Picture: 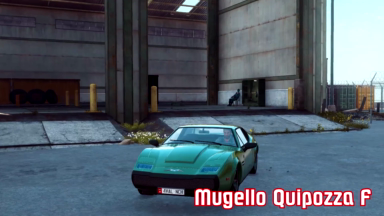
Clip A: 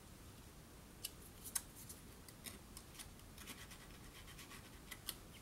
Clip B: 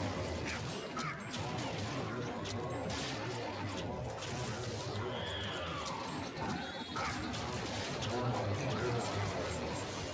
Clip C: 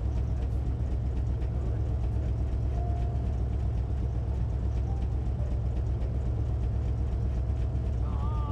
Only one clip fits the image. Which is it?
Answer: C